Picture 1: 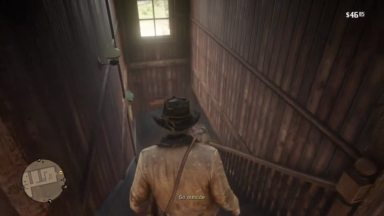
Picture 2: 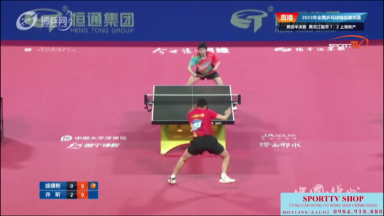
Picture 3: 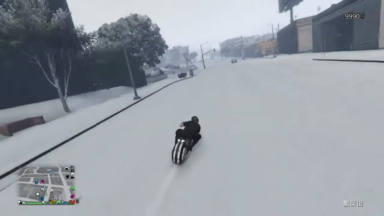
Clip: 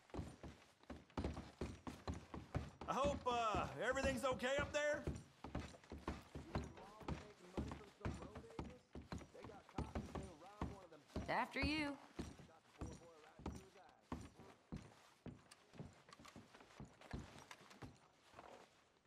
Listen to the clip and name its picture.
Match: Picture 1